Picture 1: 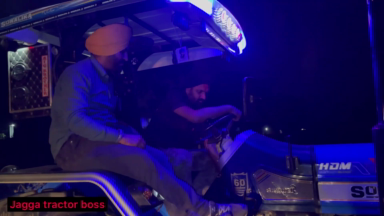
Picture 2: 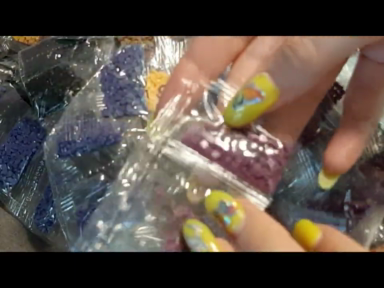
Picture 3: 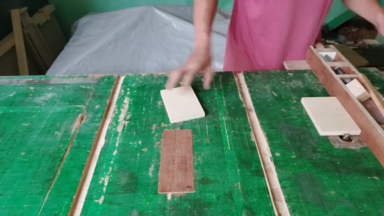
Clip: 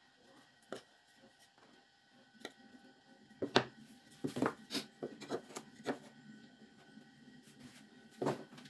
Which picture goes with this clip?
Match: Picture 3